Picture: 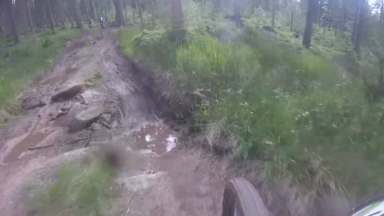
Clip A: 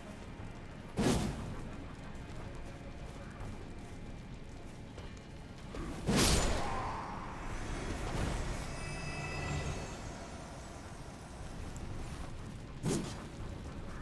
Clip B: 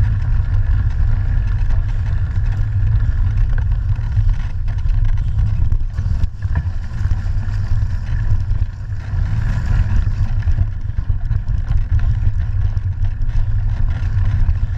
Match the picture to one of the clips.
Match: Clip B